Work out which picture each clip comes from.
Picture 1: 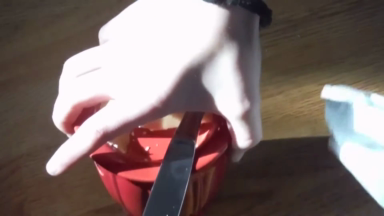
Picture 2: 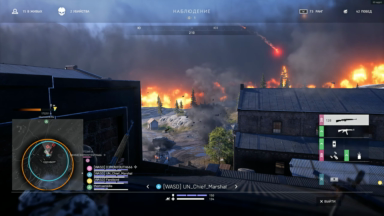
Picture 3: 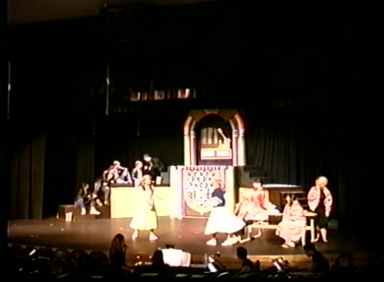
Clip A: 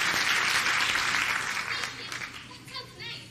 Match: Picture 3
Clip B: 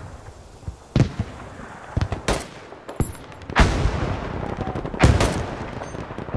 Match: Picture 2